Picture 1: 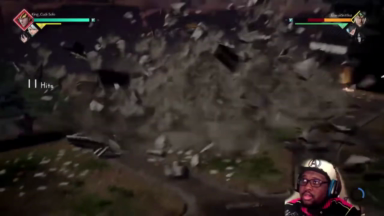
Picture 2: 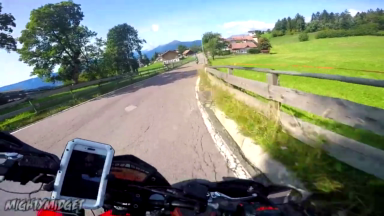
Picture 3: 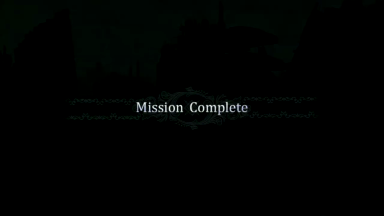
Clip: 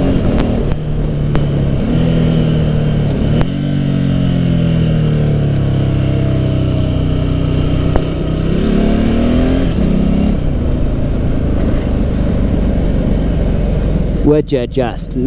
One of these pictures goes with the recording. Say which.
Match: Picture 2